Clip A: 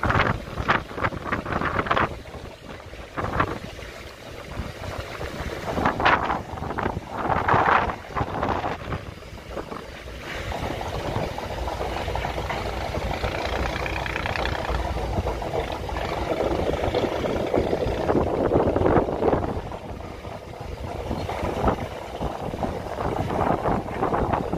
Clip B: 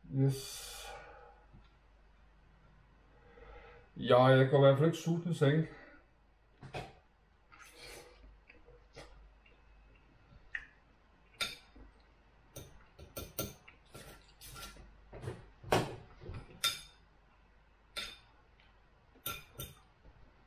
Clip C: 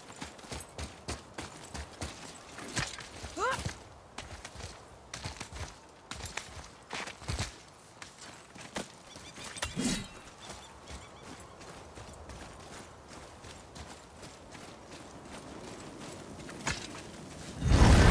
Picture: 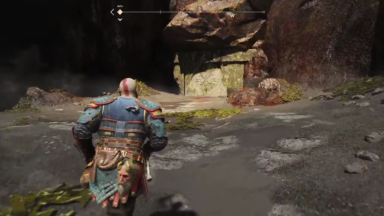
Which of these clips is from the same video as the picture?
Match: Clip C